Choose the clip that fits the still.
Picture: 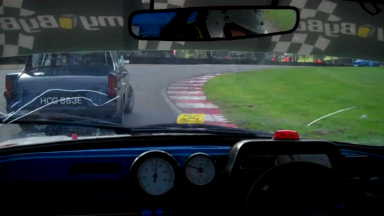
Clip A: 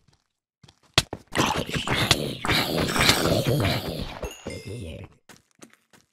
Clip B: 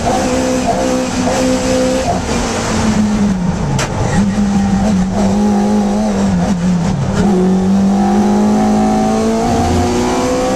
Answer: B